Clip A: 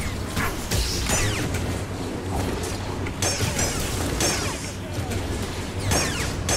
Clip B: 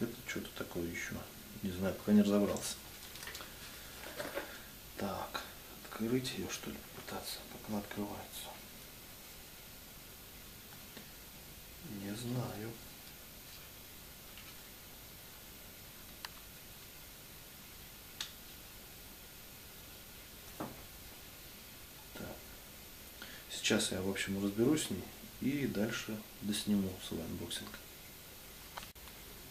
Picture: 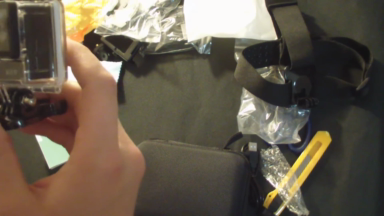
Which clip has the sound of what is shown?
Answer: B